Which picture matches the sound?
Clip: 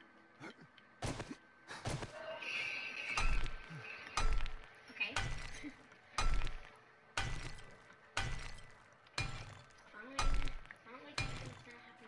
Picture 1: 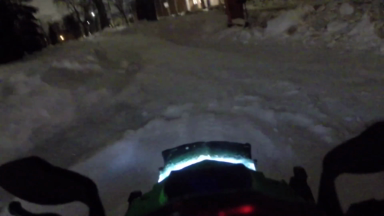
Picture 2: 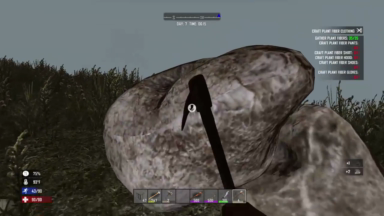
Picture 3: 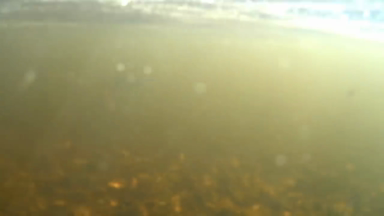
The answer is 2